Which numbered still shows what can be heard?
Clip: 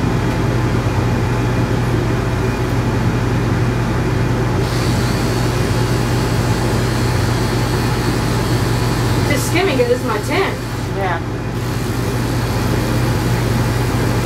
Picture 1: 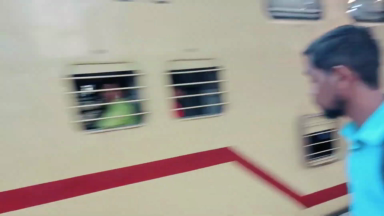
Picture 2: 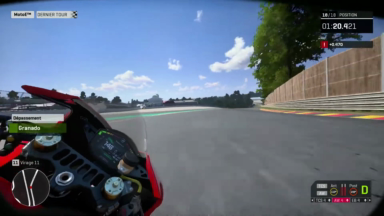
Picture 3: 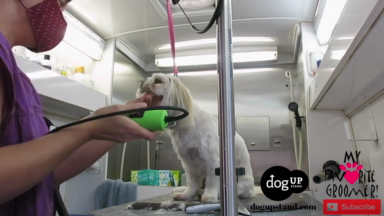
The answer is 3